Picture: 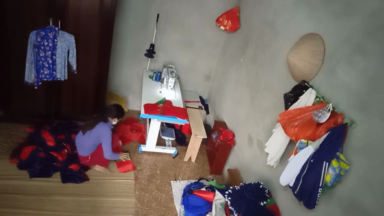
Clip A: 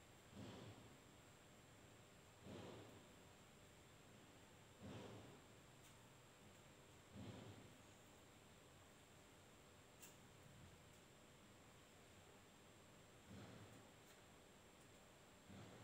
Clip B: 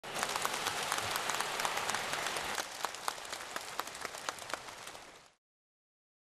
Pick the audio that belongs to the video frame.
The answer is A